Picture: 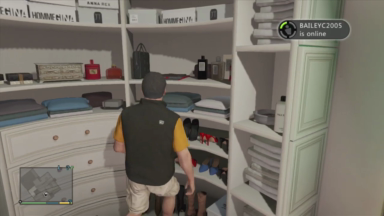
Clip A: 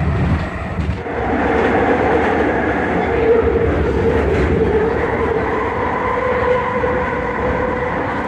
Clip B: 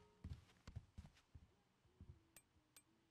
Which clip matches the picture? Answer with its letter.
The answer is B